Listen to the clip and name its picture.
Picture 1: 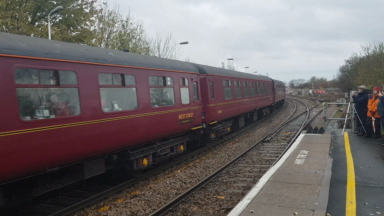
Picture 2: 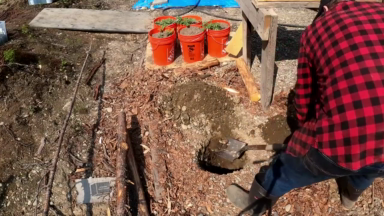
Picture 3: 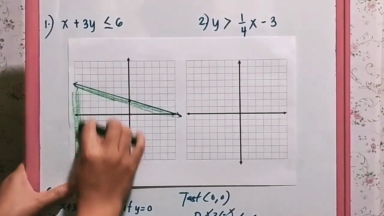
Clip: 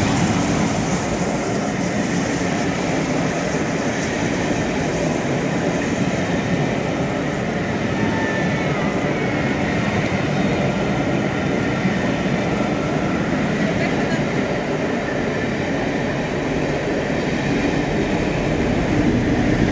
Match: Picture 1